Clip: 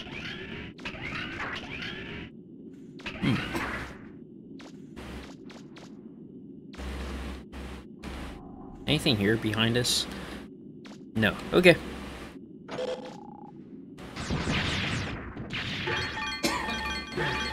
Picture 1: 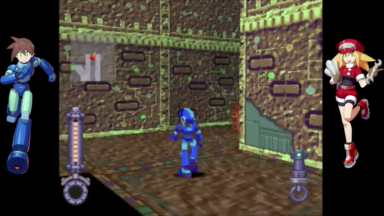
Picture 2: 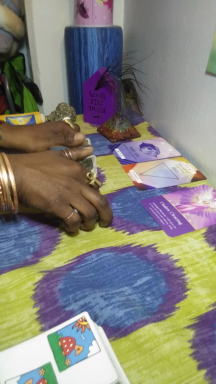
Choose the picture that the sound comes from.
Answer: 1